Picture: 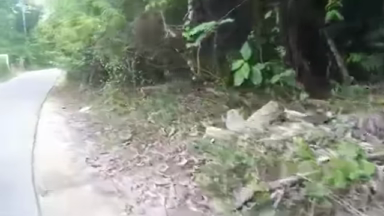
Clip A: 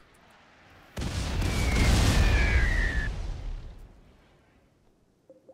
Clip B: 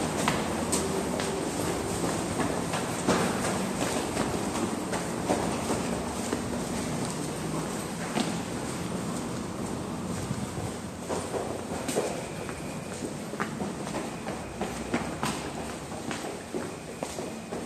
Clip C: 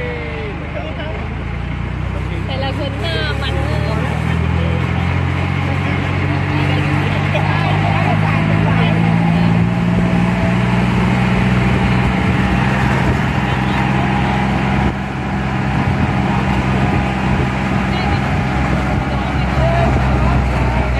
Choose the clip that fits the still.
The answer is C